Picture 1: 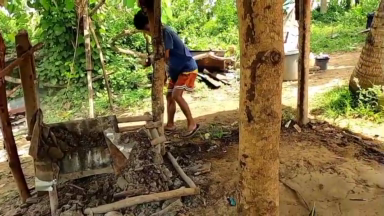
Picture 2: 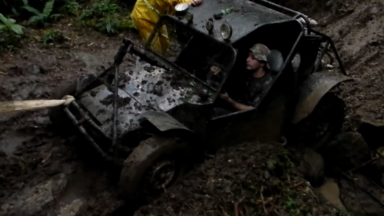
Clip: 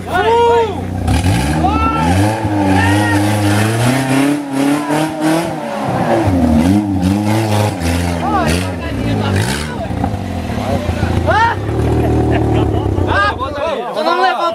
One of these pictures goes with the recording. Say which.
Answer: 2